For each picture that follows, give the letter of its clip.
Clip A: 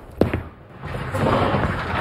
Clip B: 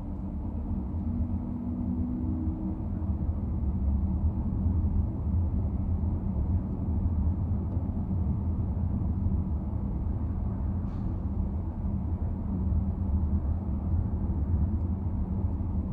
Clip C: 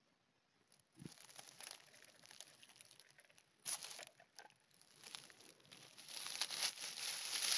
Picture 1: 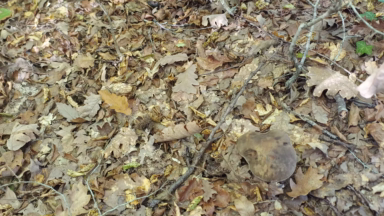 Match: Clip C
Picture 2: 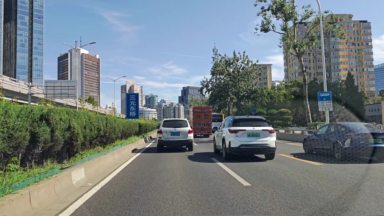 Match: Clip B